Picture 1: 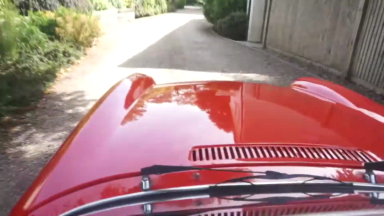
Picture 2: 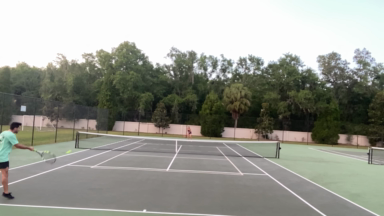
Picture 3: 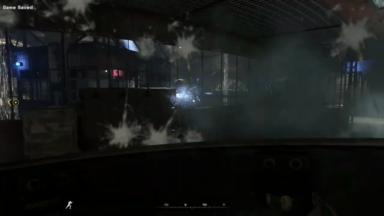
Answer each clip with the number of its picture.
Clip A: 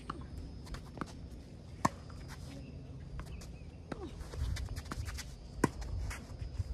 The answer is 2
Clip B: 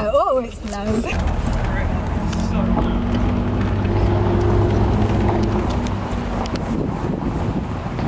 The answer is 1